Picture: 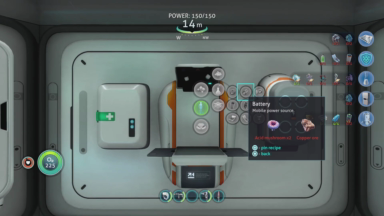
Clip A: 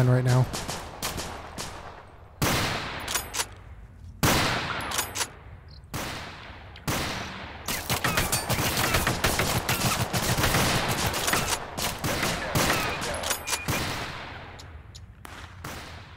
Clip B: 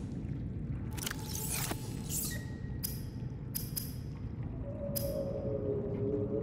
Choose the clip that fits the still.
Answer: B